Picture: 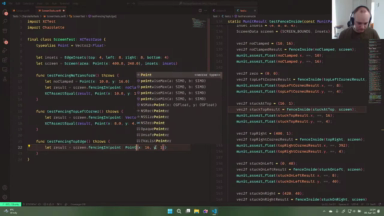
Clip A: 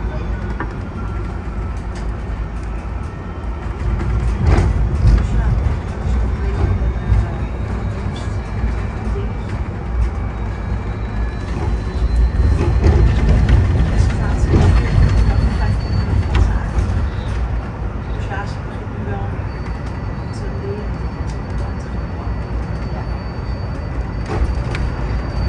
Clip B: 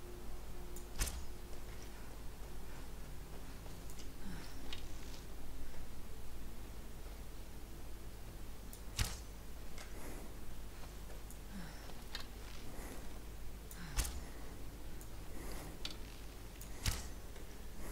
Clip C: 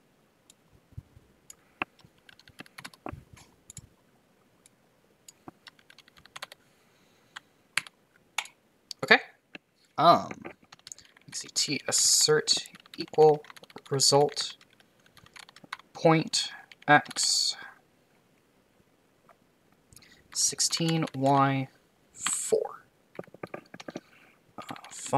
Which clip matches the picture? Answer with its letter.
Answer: C